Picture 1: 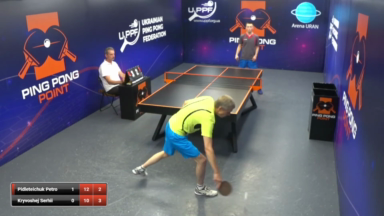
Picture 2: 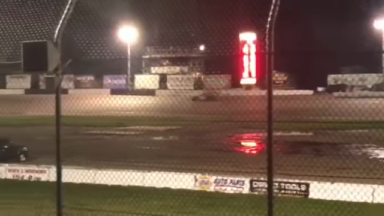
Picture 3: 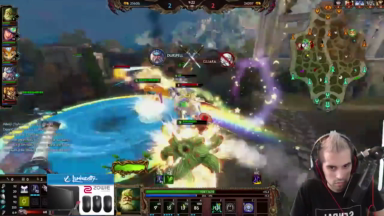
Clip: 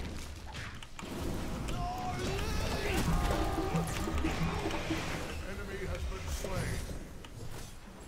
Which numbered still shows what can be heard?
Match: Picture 3